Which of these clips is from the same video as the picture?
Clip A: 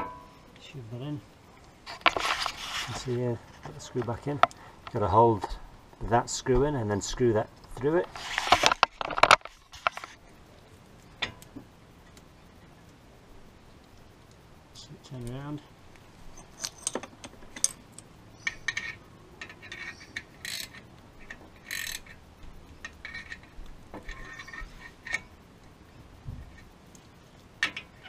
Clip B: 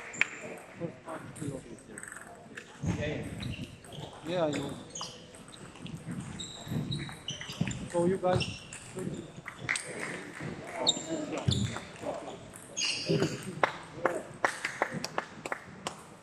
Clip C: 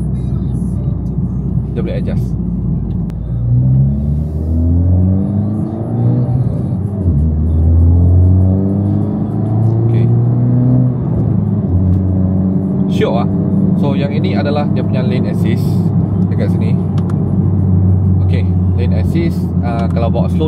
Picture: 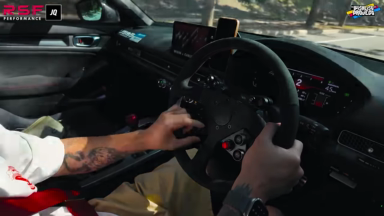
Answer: C